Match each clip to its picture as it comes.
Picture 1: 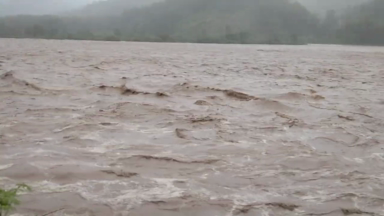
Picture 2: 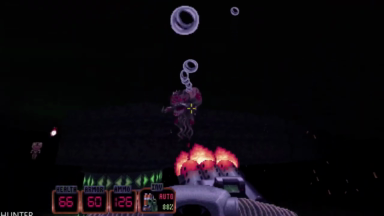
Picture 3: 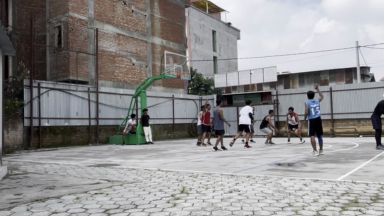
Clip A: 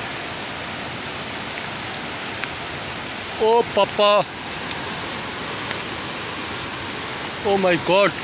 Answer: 1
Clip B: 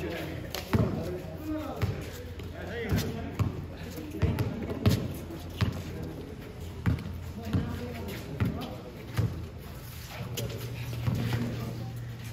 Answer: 3